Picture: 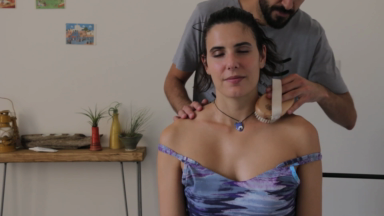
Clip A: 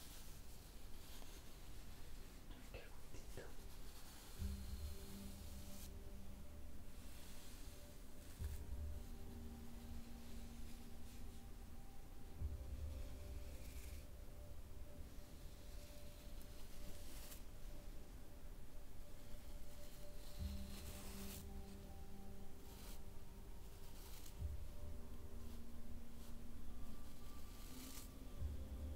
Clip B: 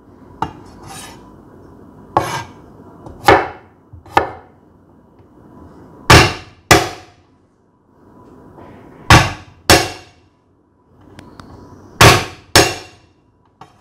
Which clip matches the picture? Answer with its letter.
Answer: A